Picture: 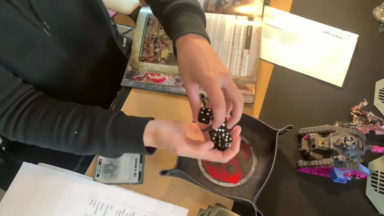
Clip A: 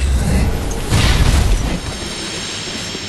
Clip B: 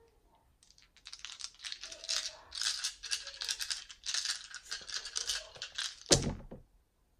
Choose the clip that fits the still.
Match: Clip B